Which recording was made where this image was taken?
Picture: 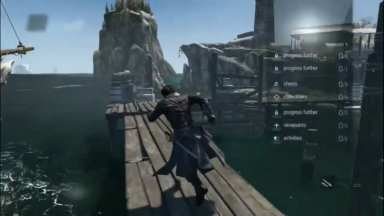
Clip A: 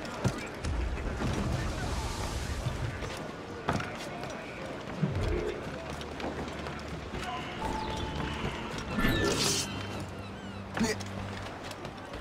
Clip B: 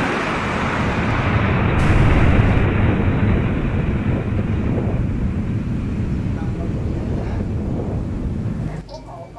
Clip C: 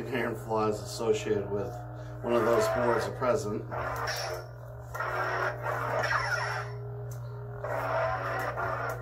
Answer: A